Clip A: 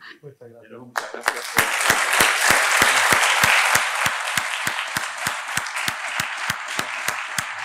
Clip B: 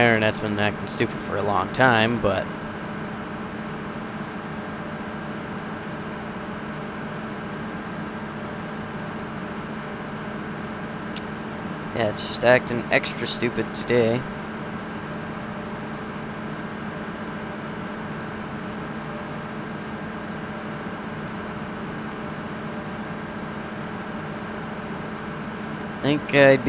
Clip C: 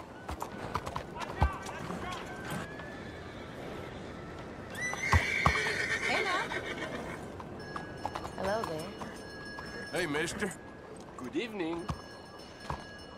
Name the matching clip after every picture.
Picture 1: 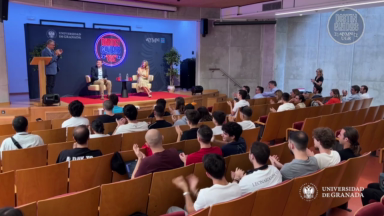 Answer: A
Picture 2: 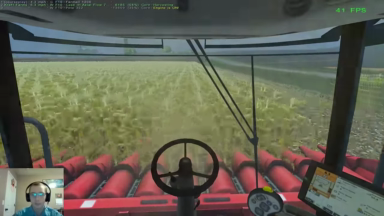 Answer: B